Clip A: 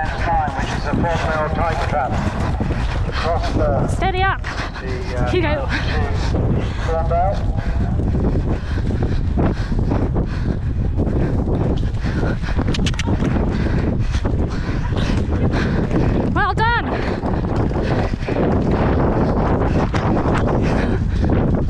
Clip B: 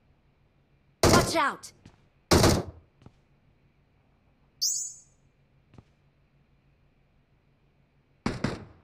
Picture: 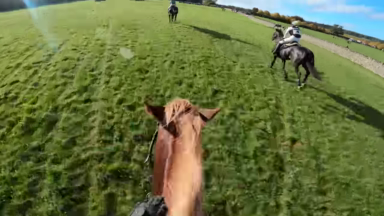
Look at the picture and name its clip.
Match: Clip A